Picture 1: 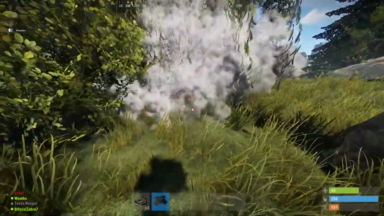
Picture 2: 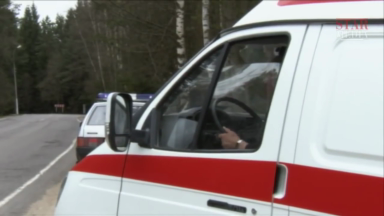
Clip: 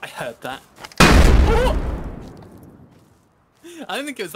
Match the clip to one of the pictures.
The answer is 1